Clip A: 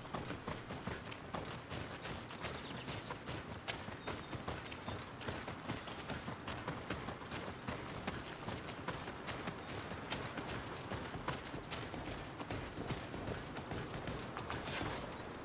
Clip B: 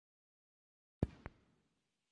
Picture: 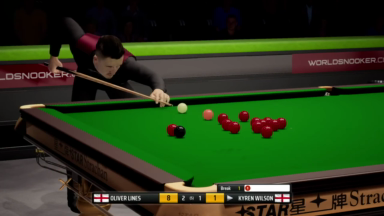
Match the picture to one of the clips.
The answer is B